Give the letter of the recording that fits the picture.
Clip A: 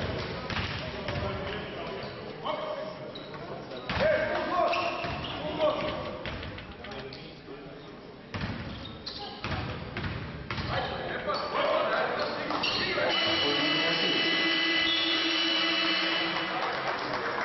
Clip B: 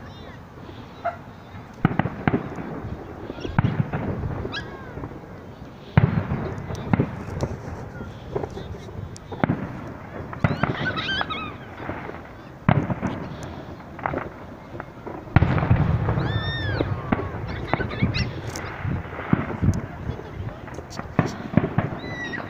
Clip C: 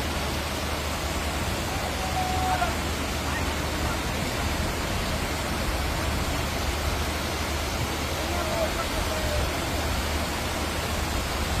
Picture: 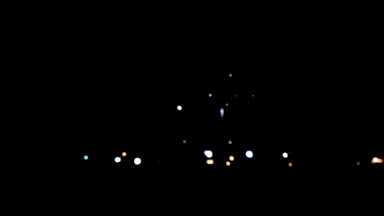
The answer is B